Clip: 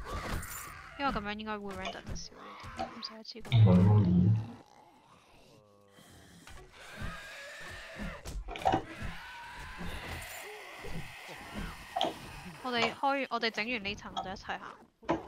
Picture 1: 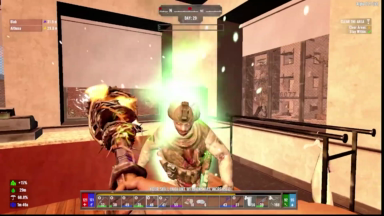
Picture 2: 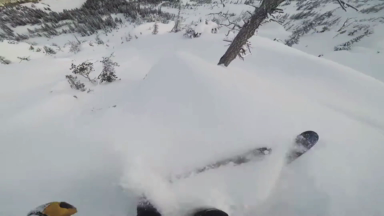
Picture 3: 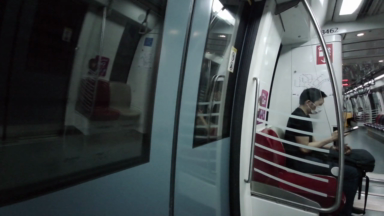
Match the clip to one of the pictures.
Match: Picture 1